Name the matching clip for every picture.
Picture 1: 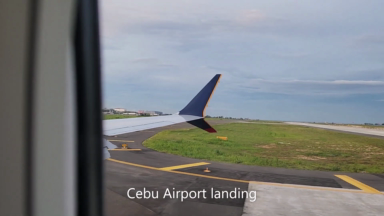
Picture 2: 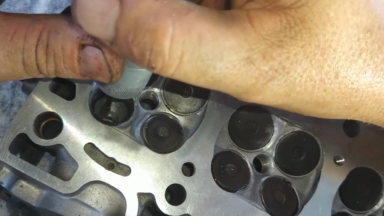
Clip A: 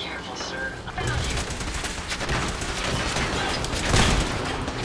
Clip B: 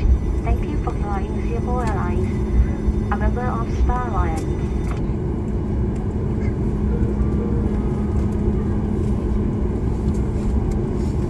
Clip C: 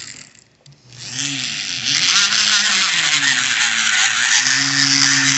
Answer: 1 B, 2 C